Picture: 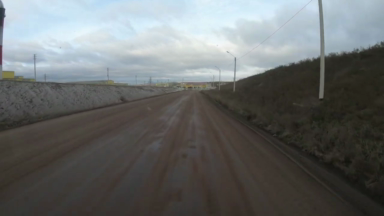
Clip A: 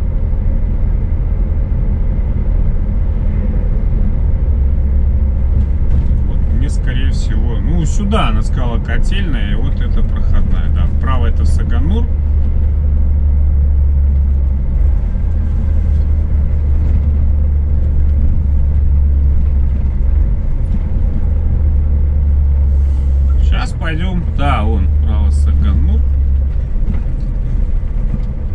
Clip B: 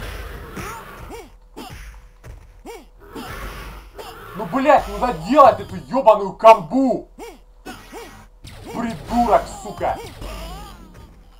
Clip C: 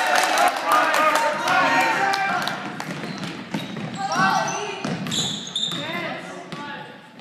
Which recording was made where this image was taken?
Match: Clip A